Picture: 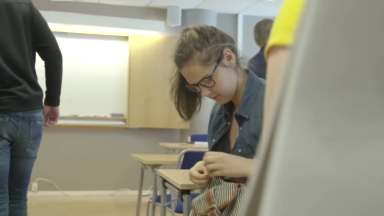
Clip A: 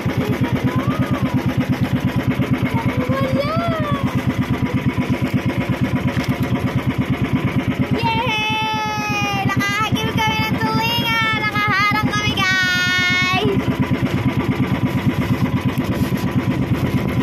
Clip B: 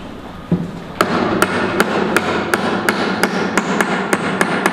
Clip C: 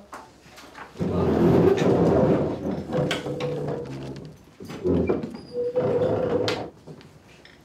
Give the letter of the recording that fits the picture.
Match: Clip C